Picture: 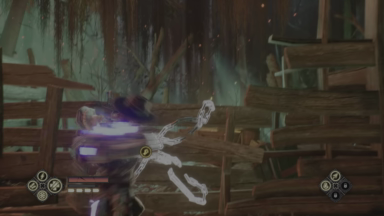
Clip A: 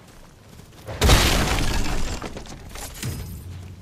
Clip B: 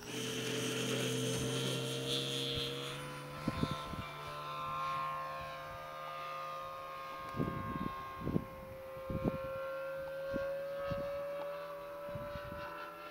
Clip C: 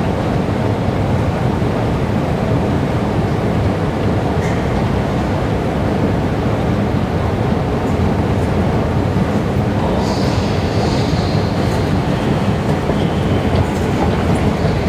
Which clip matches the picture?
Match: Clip A